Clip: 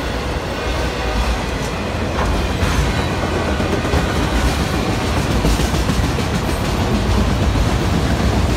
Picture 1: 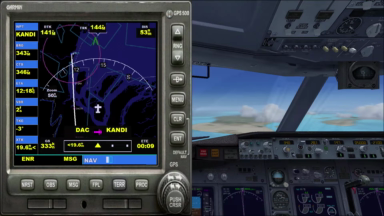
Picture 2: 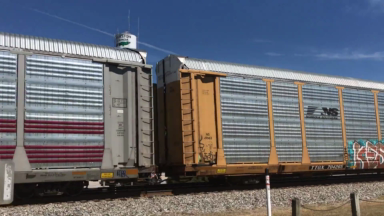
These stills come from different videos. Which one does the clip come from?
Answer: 2